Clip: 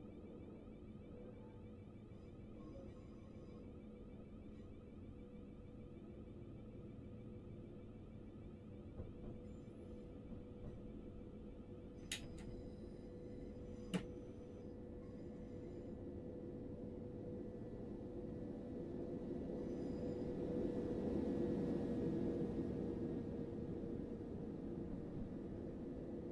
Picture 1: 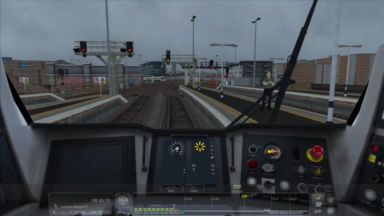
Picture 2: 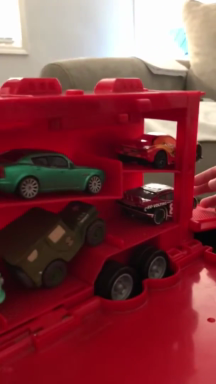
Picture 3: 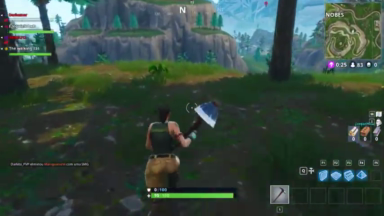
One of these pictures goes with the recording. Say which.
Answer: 1